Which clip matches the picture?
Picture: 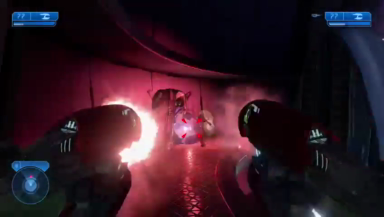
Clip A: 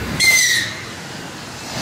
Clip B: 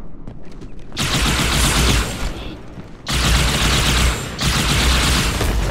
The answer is B